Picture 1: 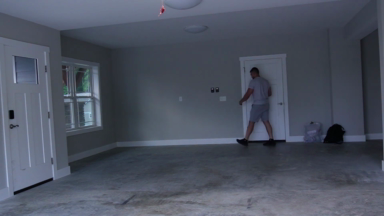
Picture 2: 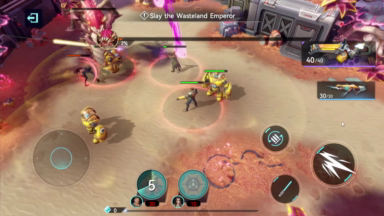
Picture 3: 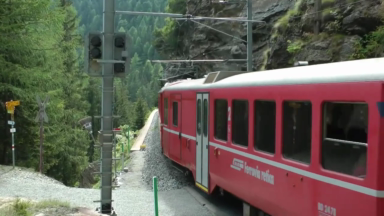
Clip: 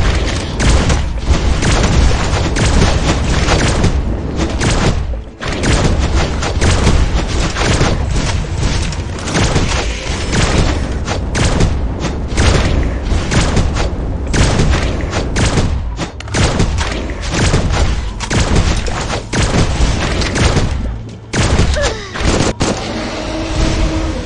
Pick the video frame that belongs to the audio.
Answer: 2